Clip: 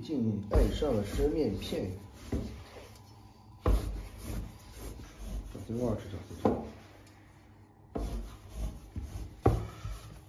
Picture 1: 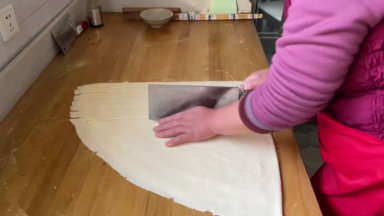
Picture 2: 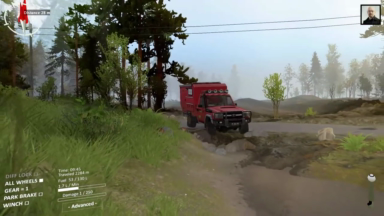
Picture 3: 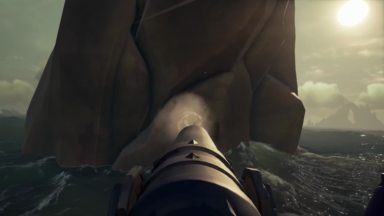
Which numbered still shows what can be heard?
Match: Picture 1